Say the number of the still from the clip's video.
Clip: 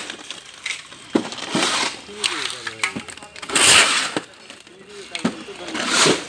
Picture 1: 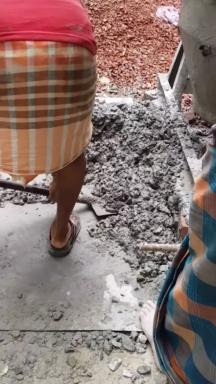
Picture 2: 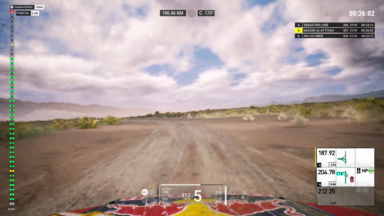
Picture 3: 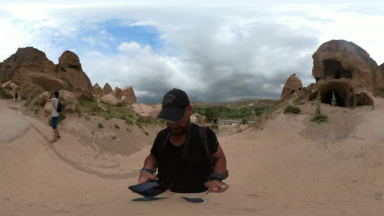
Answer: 1